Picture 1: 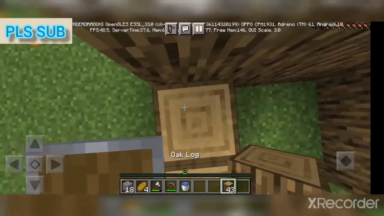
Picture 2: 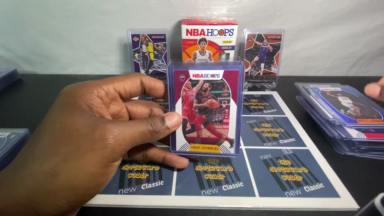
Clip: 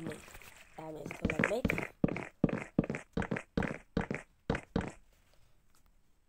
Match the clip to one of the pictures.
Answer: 1